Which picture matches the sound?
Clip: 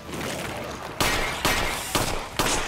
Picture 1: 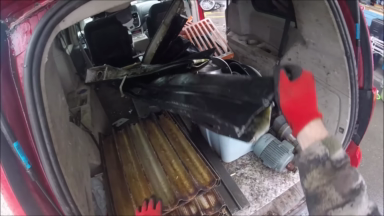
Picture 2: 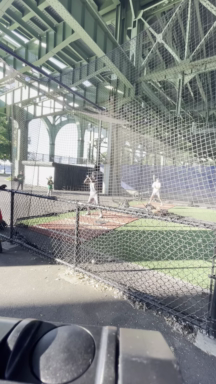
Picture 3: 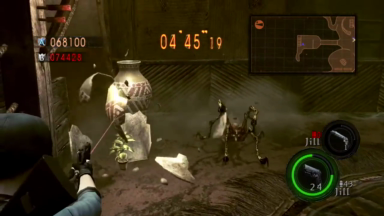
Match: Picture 3